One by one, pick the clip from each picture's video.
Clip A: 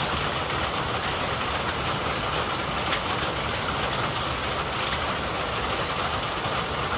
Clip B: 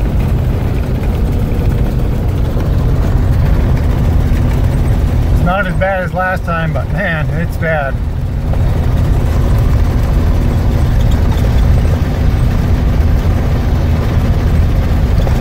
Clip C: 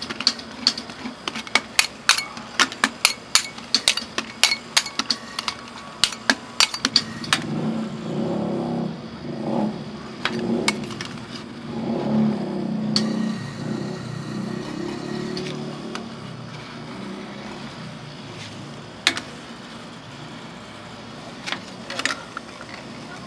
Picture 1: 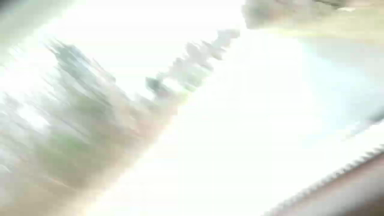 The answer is B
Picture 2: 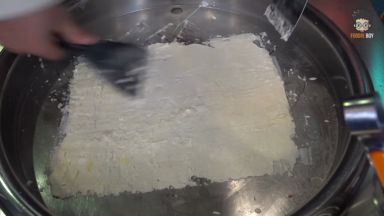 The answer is C